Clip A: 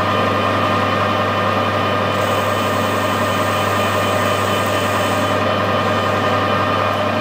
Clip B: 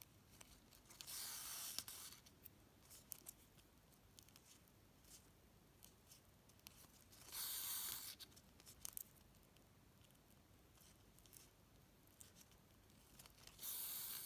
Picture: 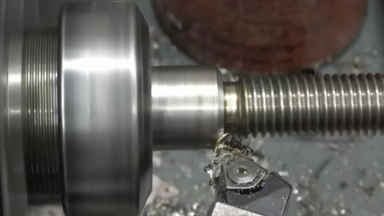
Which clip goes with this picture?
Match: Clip A